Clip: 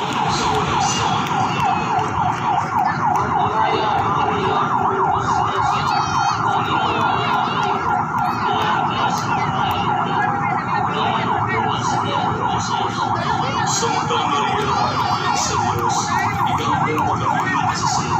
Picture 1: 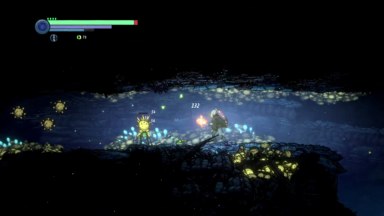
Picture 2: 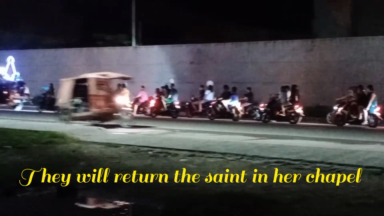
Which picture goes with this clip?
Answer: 2